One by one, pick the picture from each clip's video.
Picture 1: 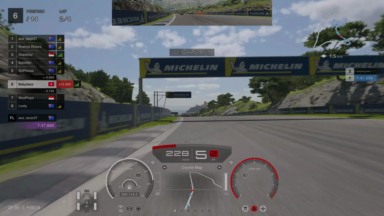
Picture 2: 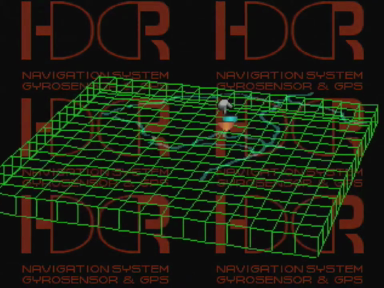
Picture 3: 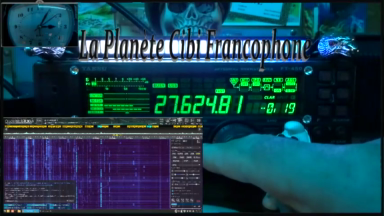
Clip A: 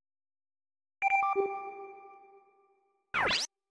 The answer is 2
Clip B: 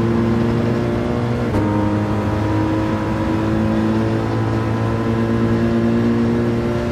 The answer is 1